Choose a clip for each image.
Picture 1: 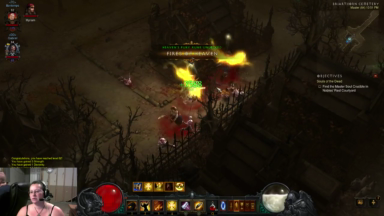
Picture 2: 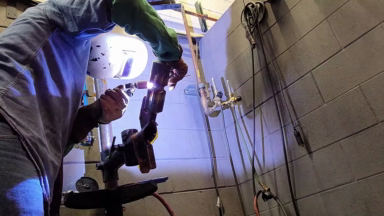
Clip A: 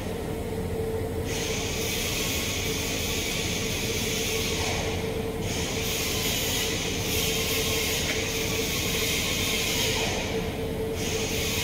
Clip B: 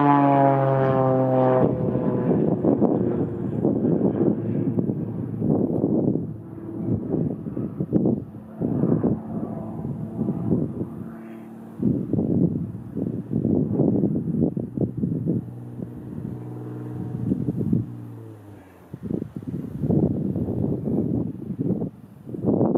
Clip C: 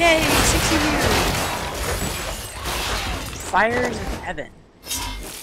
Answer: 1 C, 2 A